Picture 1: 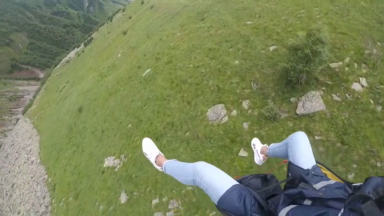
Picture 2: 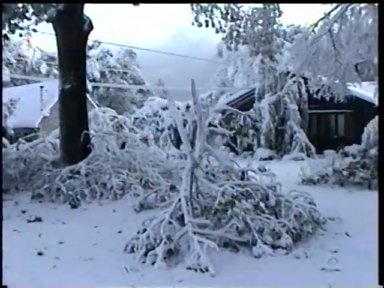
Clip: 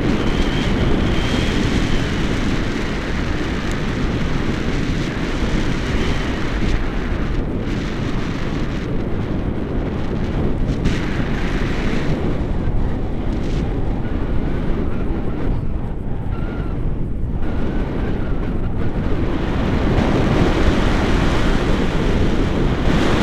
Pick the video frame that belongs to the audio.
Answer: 1